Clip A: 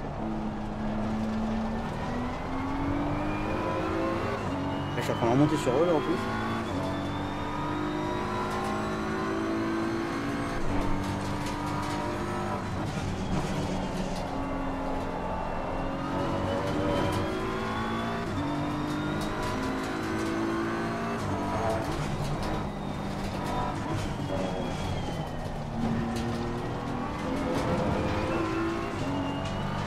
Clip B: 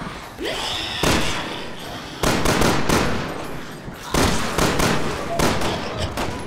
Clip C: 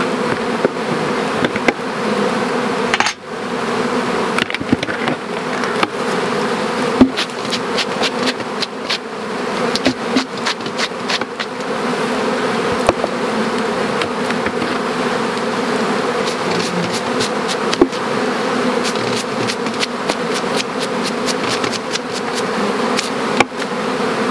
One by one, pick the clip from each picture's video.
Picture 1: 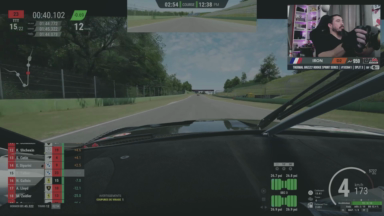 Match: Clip A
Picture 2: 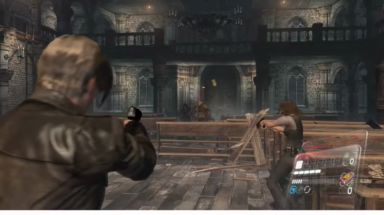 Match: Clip B